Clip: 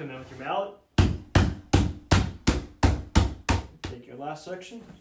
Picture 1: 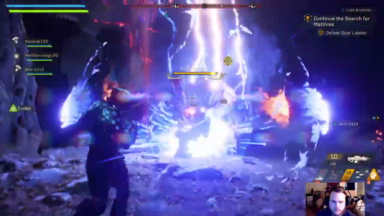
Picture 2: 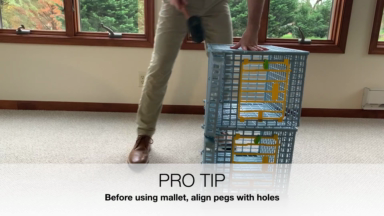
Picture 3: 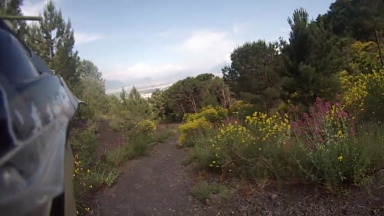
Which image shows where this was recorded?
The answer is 2